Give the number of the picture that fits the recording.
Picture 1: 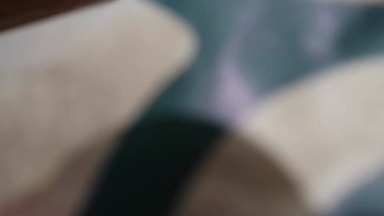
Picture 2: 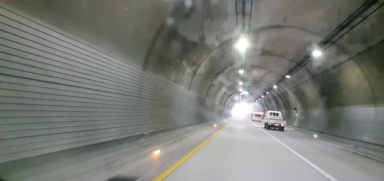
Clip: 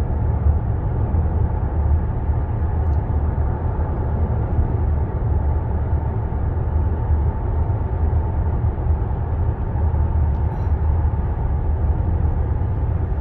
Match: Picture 2